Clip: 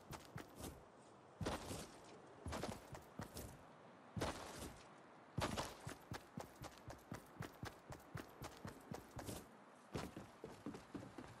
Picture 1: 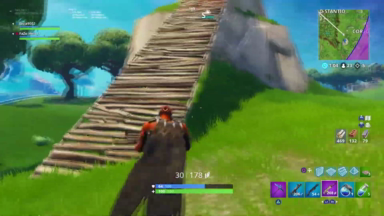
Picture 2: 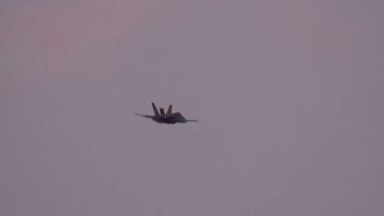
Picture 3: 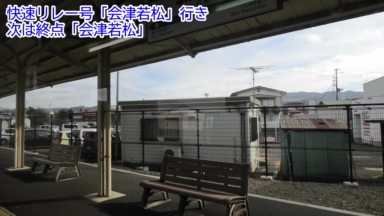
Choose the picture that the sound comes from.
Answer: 1